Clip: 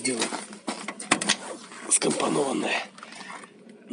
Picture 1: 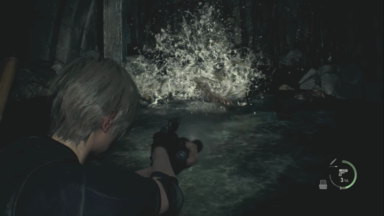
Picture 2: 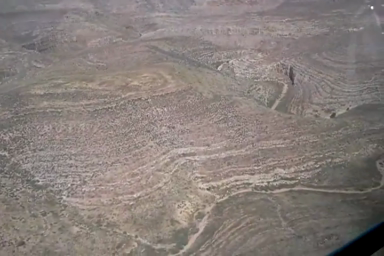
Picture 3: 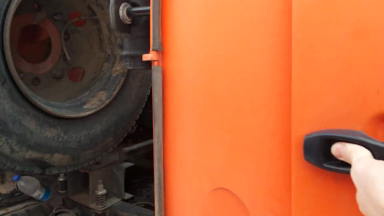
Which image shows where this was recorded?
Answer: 3